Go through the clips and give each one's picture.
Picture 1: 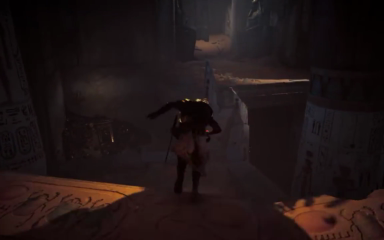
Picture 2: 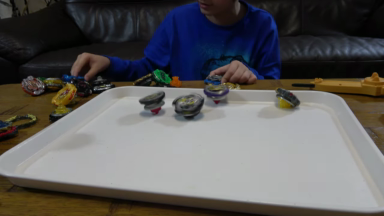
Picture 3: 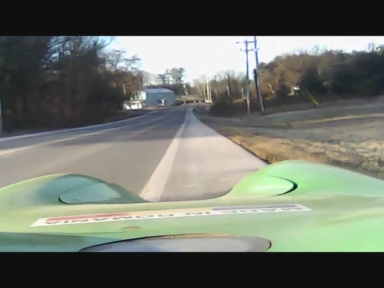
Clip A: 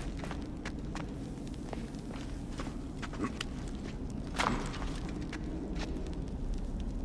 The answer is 1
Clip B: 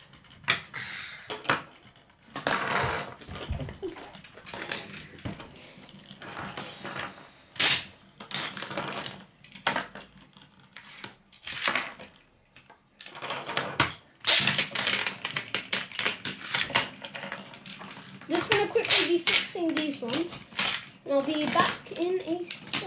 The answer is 2